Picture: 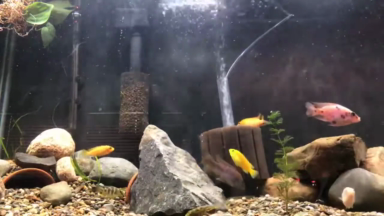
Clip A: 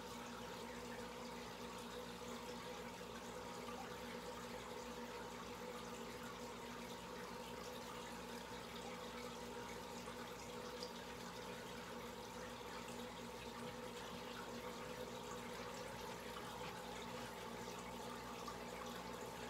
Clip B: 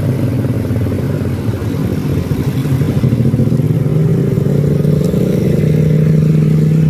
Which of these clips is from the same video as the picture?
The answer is A